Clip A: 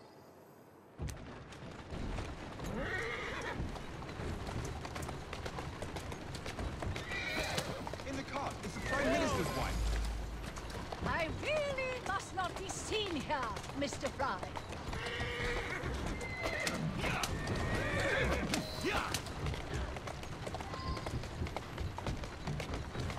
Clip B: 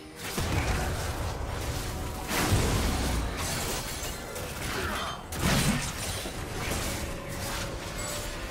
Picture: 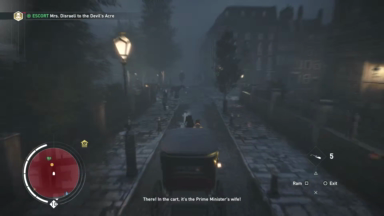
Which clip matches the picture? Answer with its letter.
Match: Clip A